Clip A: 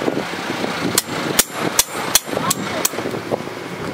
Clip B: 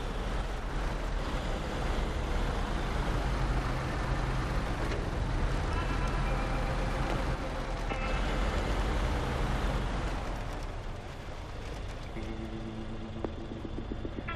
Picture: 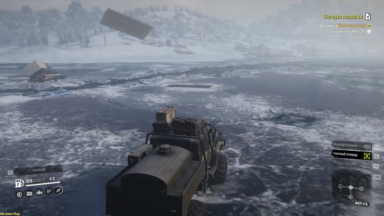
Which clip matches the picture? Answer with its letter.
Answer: B